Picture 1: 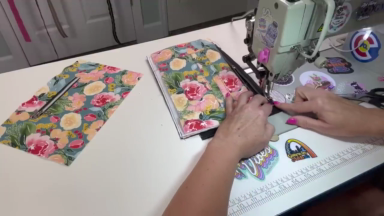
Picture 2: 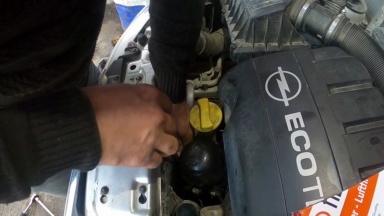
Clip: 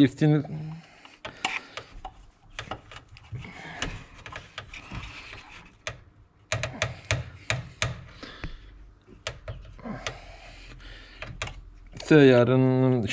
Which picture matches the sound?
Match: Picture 2